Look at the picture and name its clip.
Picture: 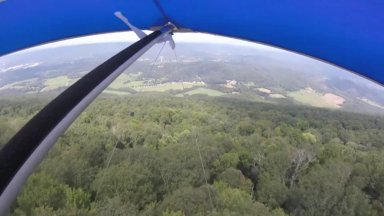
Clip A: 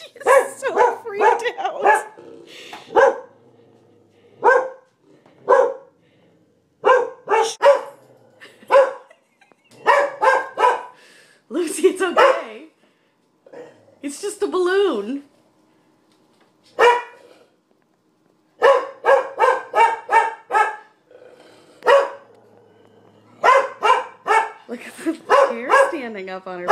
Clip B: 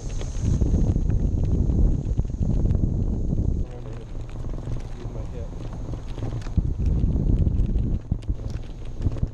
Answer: B